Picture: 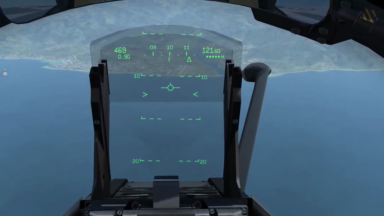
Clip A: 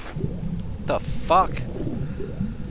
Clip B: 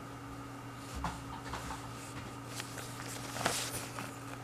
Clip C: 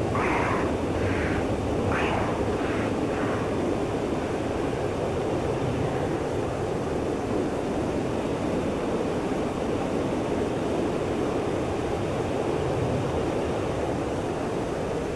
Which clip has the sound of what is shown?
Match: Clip C